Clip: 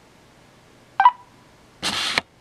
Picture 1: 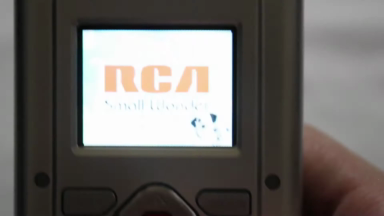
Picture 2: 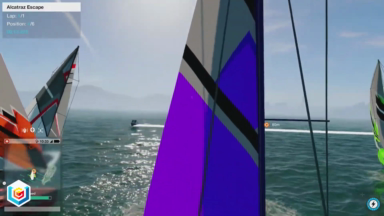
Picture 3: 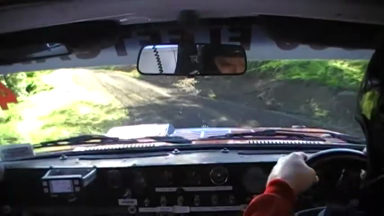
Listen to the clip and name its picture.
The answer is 1